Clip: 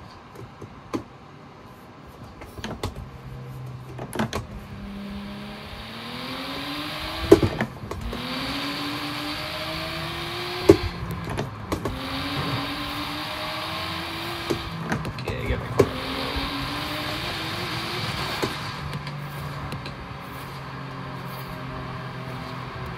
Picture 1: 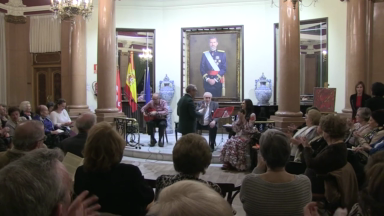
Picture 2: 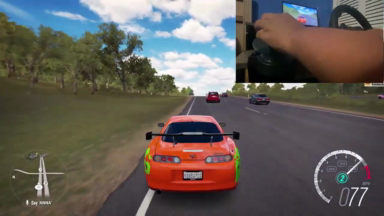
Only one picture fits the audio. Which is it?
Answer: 2